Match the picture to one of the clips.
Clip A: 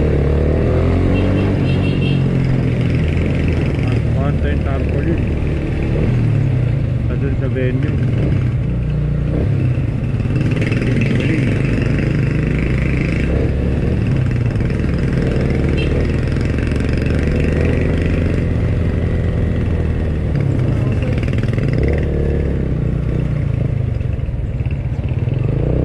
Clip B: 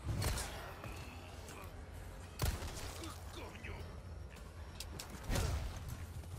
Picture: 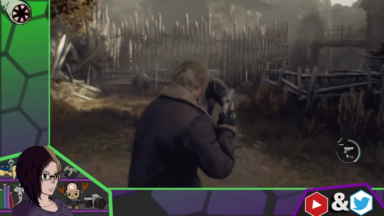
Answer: B